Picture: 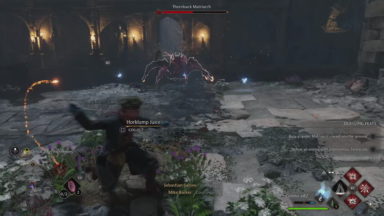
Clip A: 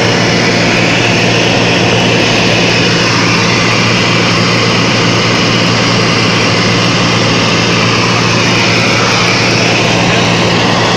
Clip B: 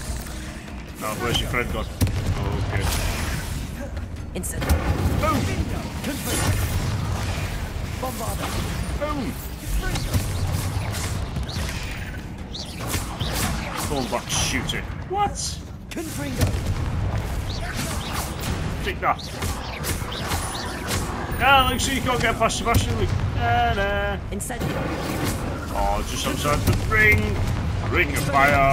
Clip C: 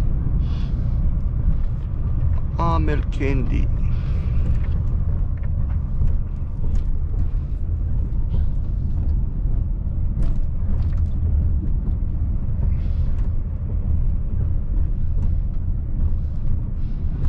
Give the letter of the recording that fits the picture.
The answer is B